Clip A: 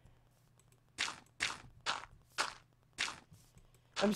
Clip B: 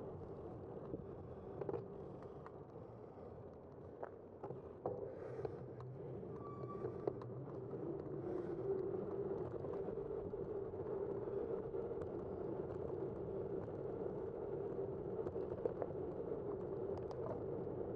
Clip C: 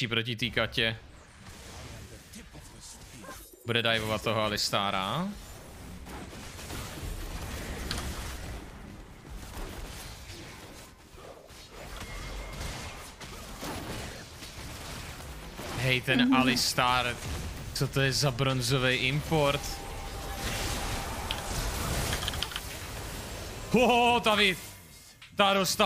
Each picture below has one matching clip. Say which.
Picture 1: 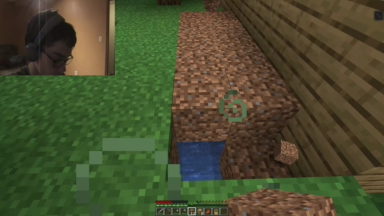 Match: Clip A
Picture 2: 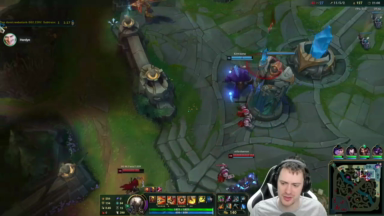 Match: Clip C